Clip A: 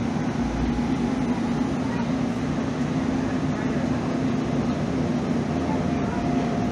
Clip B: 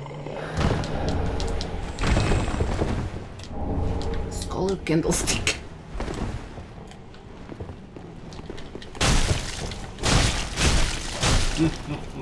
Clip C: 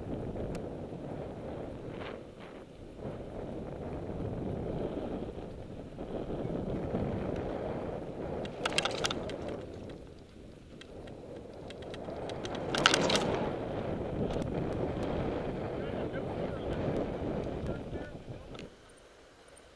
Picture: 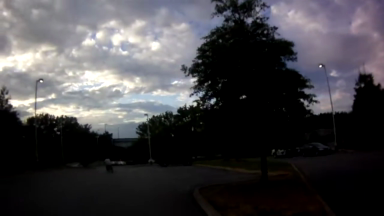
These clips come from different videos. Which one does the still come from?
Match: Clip C